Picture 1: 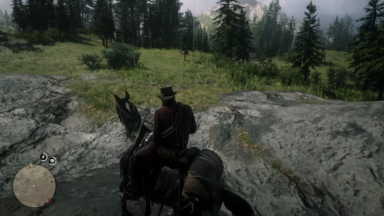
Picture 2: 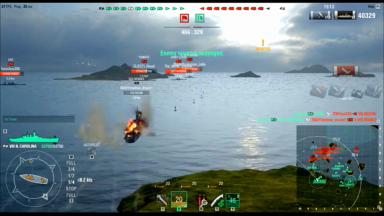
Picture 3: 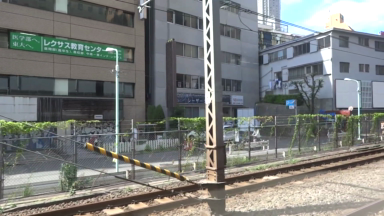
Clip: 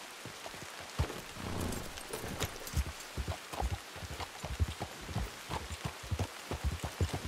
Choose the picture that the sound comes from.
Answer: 1